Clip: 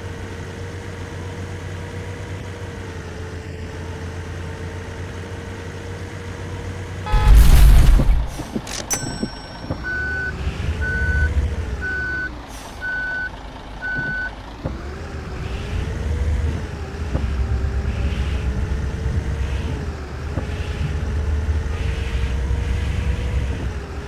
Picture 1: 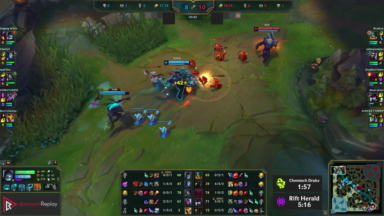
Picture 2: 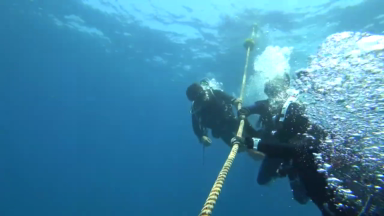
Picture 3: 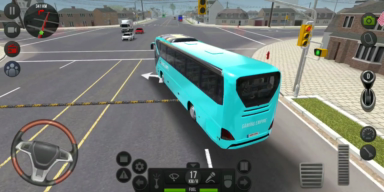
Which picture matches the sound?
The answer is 3